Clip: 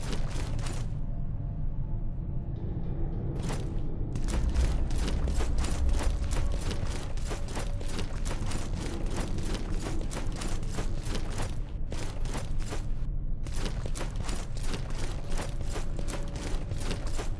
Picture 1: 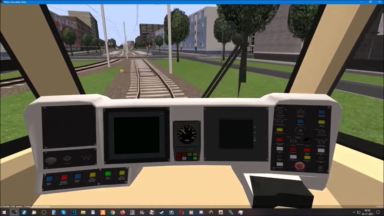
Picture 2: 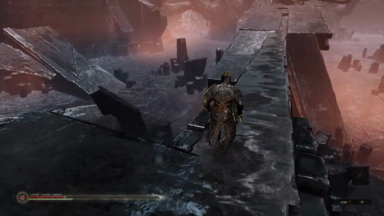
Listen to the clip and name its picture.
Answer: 2